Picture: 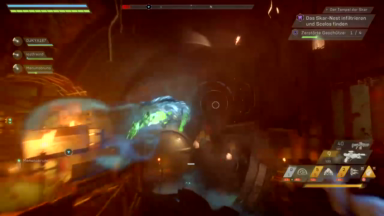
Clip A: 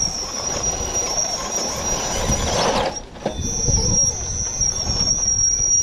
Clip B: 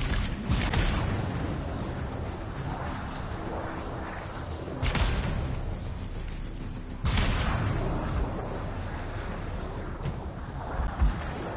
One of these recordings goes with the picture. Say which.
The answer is B